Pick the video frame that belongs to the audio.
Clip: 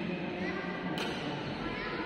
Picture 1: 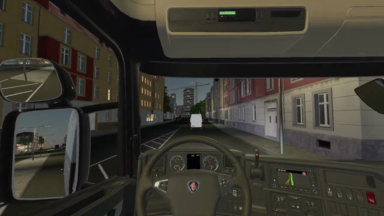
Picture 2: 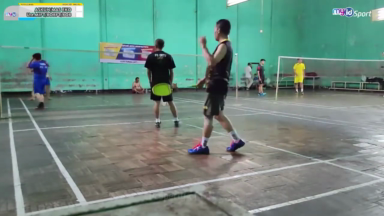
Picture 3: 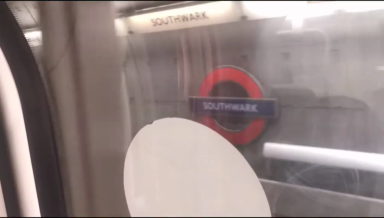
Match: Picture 2